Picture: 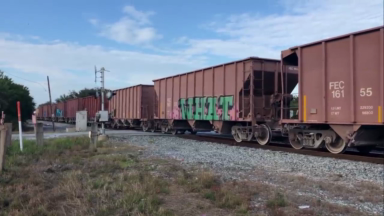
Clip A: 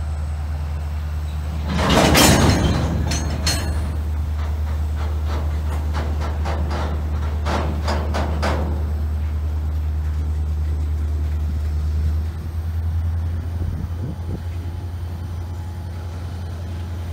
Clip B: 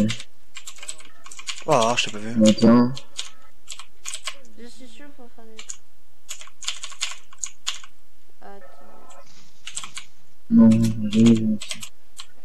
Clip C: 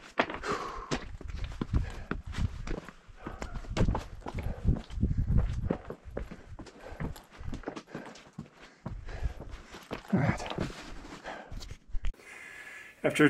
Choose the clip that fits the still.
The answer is A